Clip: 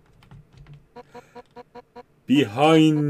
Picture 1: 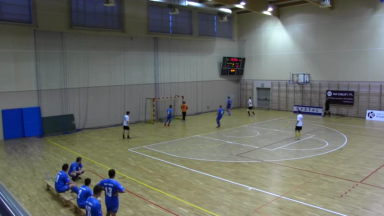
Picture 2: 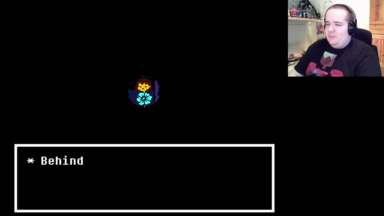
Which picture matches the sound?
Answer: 2